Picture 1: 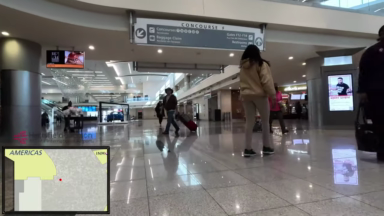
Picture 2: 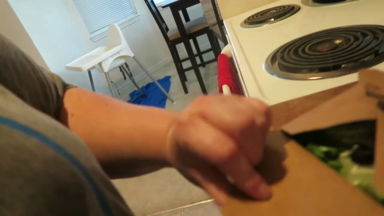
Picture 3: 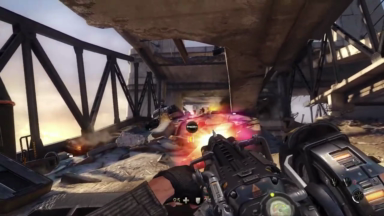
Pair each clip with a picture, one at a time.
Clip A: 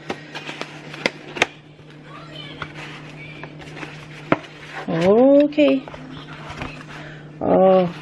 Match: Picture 2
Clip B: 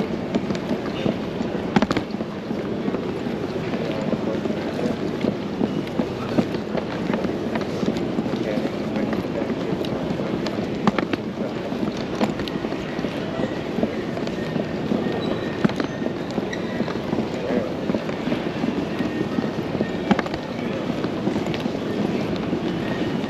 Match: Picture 1